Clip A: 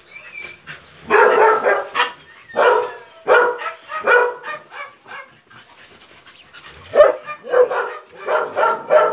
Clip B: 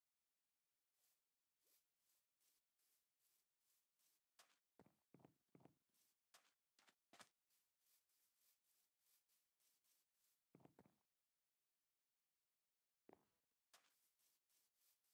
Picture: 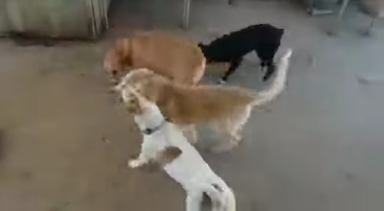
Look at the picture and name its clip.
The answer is A